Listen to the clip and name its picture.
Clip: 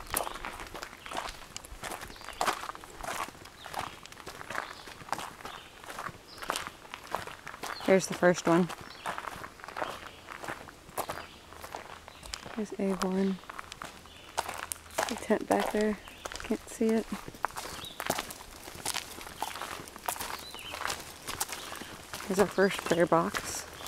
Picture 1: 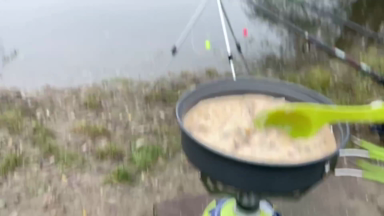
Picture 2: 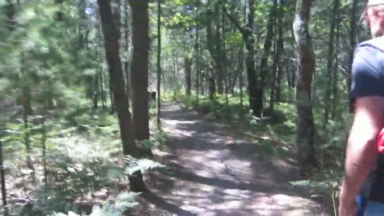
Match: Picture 2